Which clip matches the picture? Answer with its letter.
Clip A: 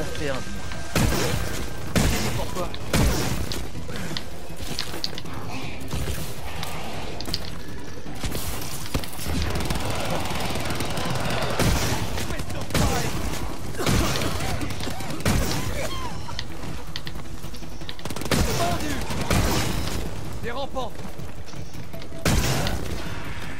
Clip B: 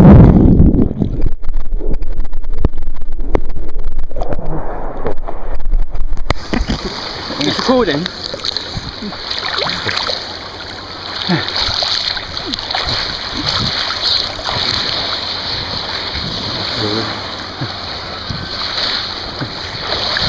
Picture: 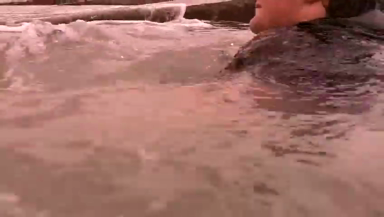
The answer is B